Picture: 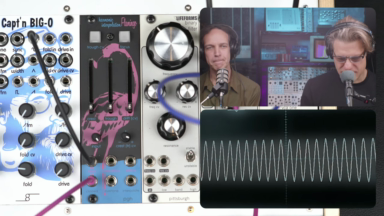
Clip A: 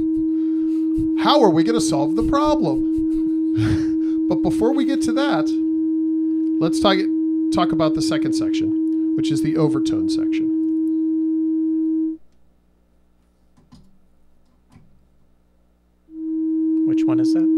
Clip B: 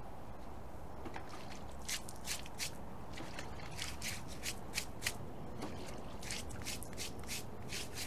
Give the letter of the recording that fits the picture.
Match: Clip A